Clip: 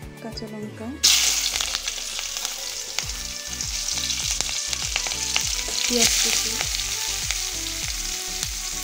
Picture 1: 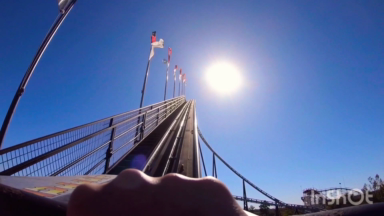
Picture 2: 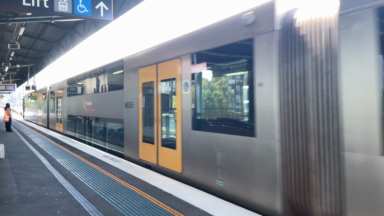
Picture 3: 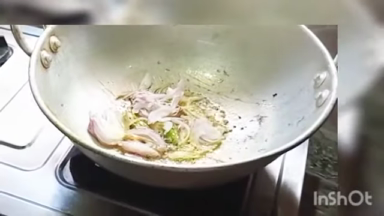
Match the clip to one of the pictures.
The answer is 3